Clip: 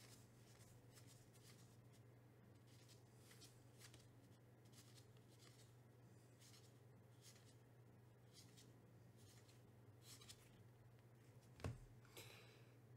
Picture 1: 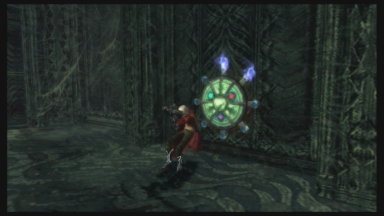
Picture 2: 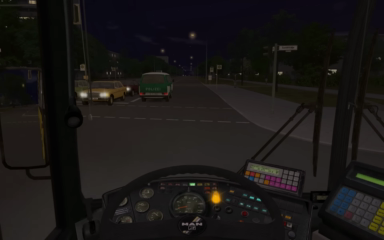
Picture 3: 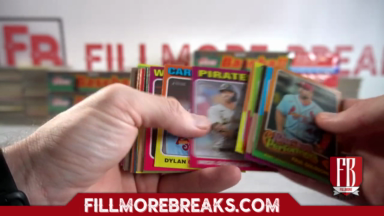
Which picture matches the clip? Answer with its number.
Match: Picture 3